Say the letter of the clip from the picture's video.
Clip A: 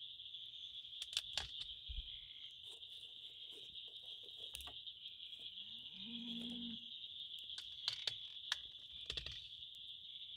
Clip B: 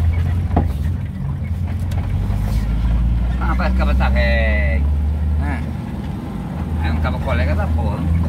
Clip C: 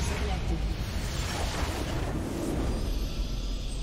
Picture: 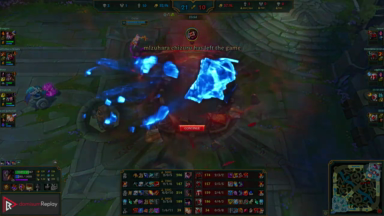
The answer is C